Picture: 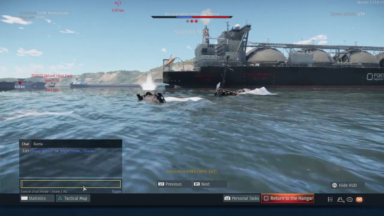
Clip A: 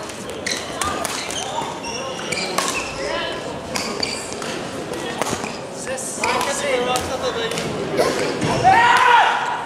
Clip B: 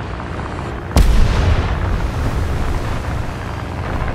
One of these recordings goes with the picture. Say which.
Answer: B